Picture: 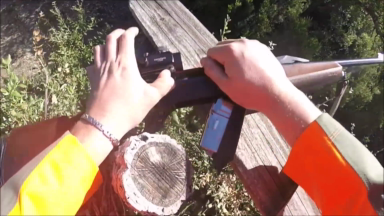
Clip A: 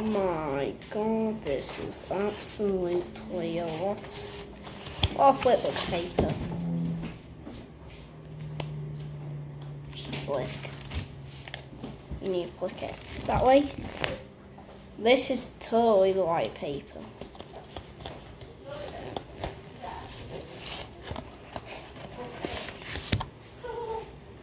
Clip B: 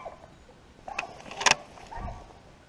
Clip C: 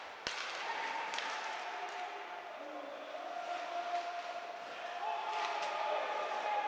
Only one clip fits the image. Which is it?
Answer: B